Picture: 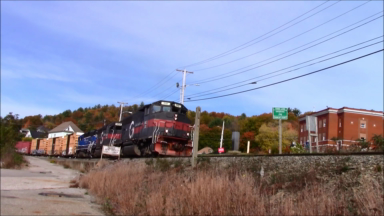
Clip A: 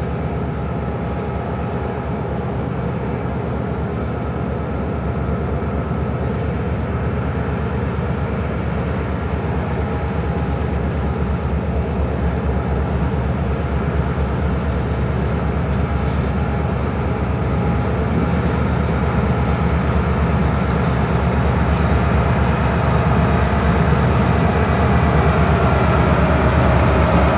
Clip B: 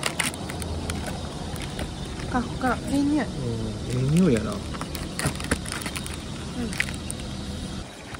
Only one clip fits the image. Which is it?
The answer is A